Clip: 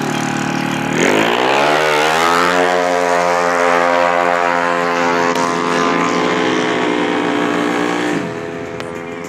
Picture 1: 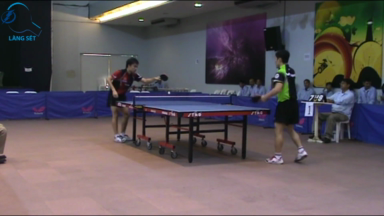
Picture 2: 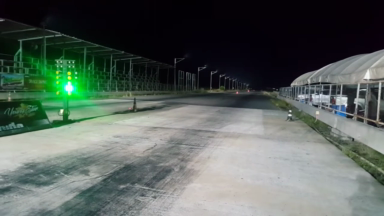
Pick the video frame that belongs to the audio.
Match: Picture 2